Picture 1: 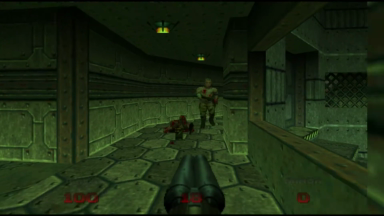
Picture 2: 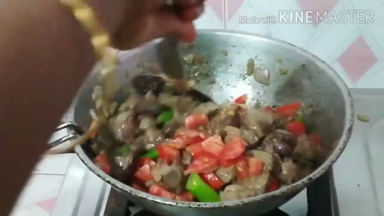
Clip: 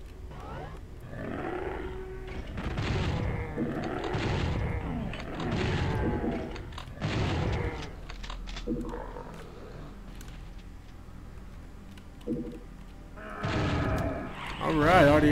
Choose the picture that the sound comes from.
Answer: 1